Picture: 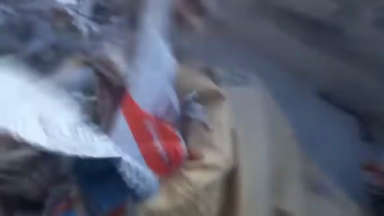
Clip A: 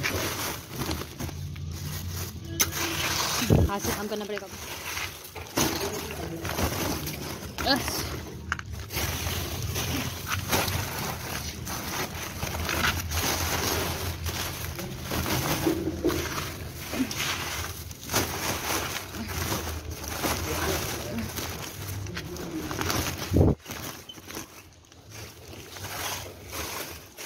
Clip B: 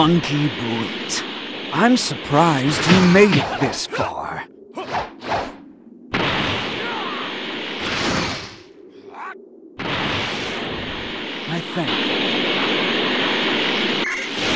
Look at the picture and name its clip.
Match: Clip A